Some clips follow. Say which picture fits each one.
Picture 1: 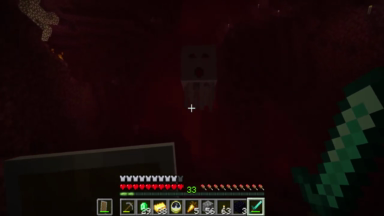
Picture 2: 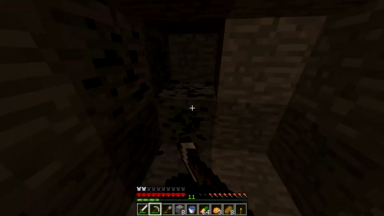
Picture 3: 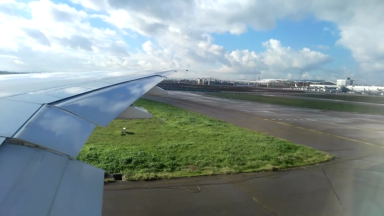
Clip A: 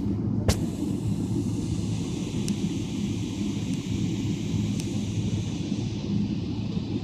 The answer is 3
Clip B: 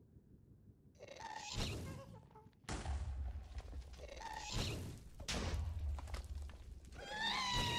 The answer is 1